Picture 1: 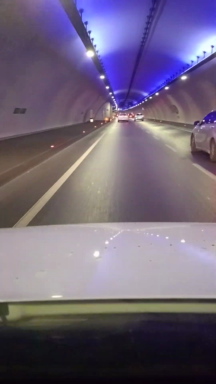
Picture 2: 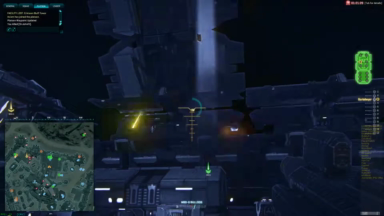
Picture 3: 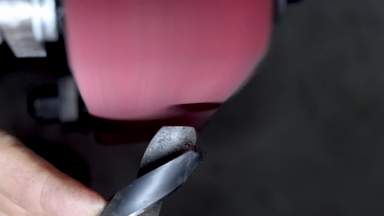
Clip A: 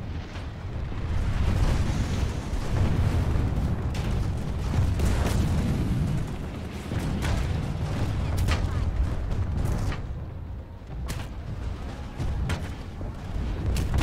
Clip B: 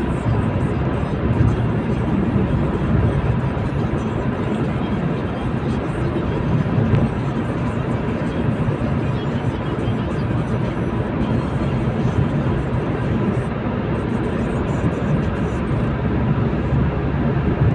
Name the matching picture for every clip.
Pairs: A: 2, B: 1